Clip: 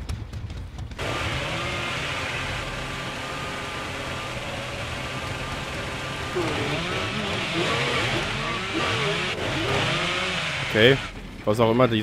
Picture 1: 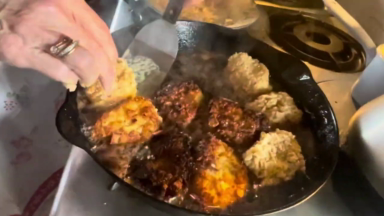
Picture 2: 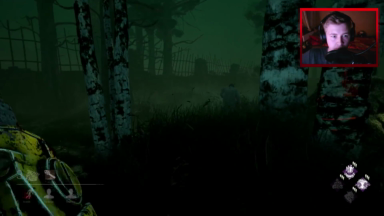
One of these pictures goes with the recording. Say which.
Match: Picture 2